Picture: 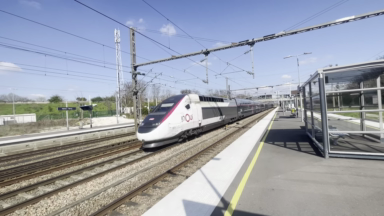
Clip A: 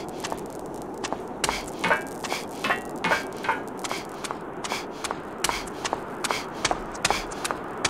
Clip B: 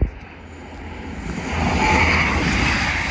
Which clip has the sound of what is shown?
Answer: B